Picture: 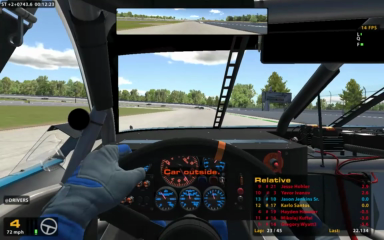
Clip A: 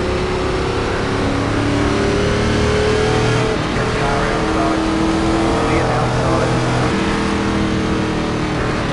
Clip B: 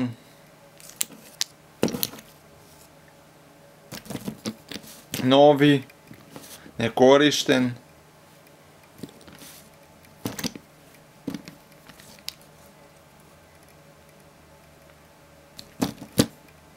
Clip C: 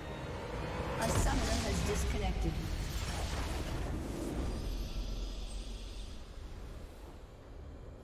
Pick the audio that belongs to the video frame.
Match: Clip A